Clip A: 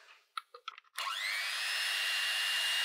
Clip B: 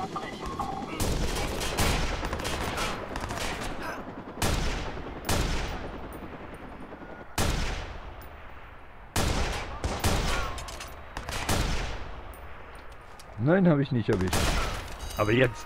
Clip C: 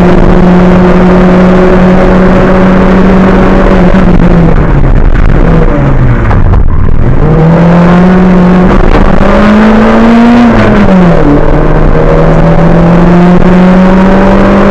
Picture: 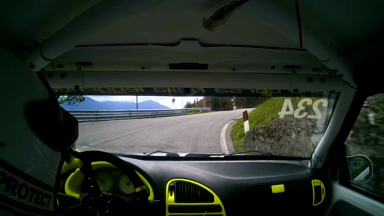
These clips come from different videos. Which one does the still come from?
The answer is C